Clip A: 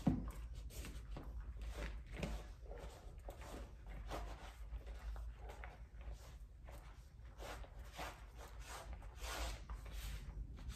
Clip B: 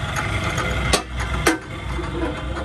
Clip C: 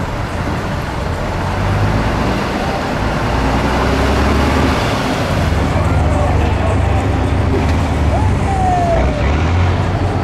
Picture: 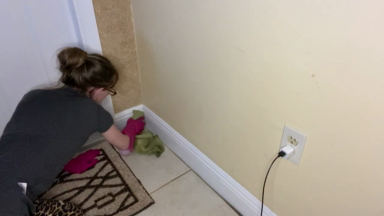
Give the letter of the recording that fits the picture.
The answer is A